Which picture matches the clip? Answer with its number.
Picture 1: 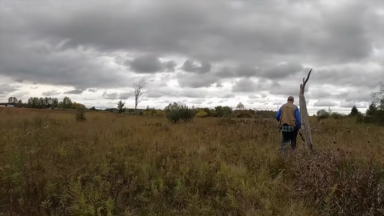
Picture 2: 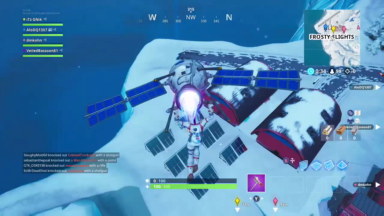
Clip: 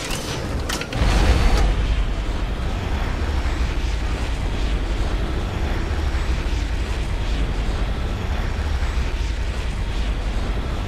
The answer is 2